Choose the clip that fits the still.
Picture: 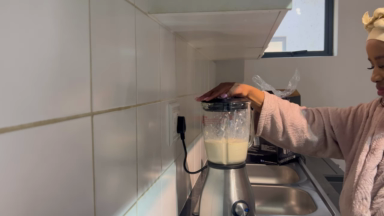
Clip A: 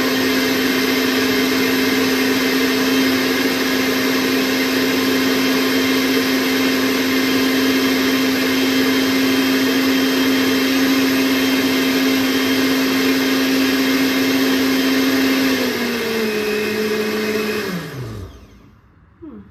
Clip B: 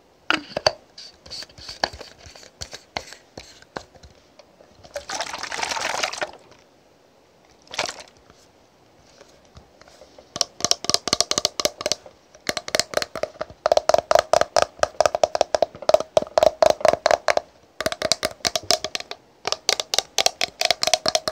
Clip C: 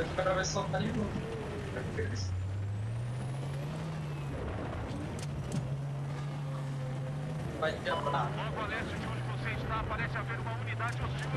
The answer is A